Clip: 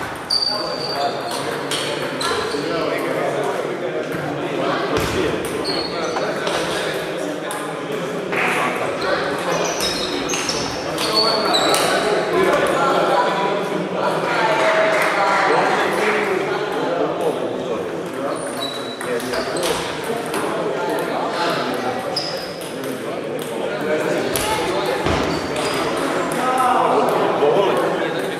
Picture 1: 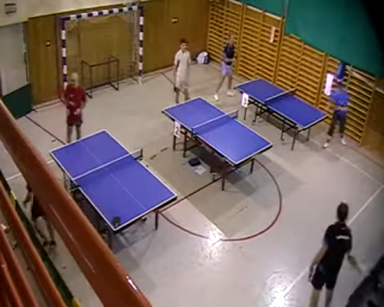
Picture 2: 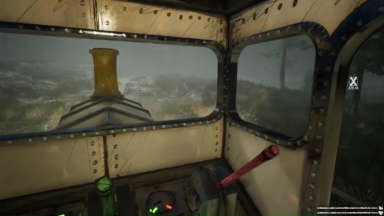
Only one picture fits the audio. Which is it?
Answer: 1